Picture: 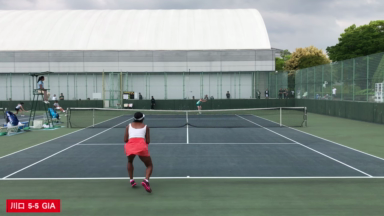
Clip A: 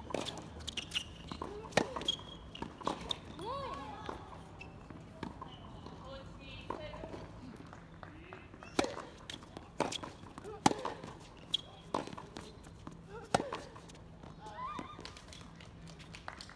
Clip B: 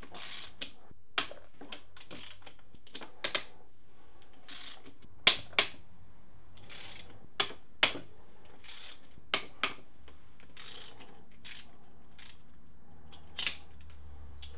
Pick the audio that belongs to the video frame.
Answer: A